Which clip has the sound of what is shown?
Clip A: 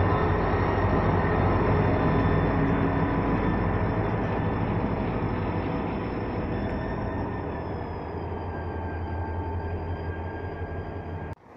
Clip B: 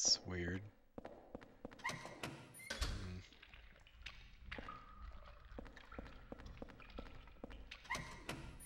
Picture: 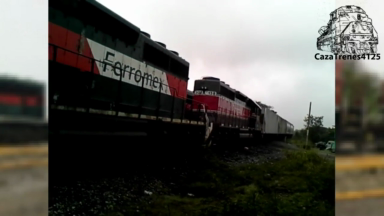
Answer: A